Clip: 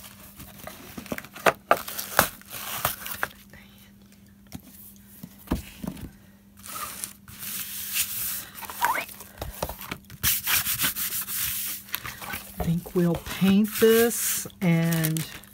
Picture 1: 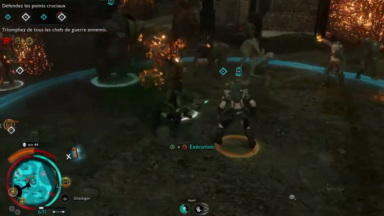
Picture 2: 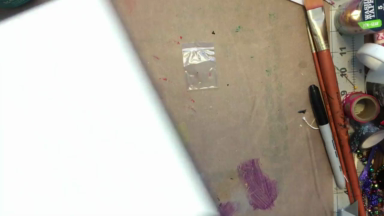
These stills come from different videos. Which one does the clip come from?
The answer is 2